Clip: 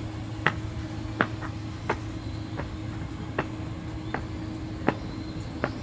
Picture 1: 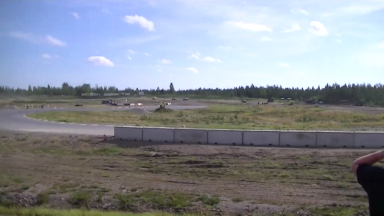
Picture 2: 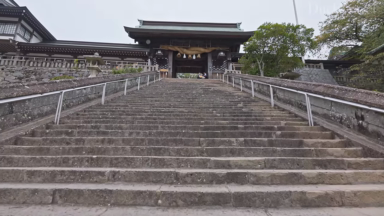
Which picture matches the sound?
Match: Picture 2